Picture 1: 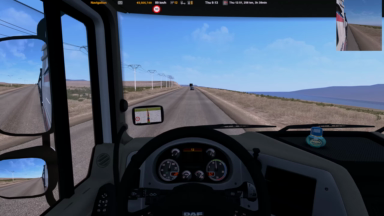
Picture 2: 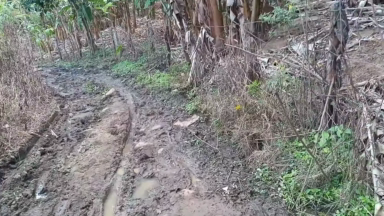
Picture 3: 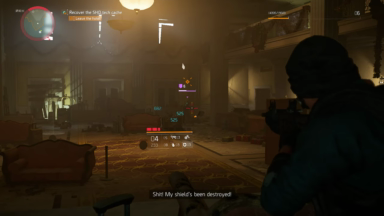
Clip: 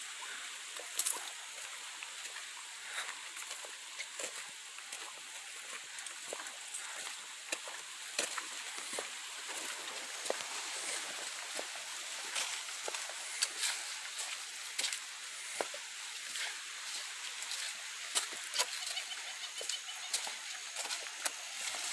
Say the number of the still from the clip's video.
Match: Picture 2